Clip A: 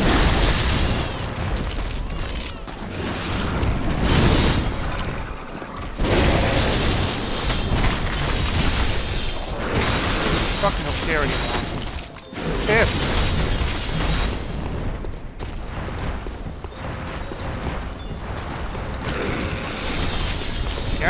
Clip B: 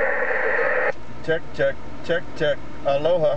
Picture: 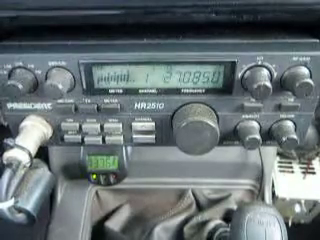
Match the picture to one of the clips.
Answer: B